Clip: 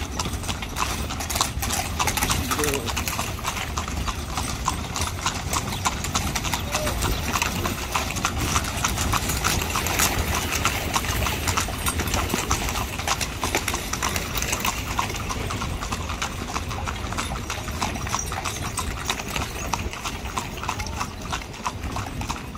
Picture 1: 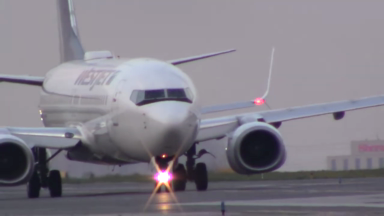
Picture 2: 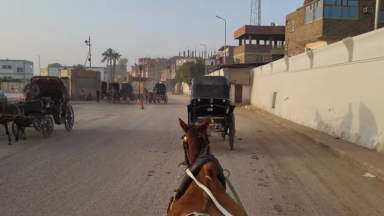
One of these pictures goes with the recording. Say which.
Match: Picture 2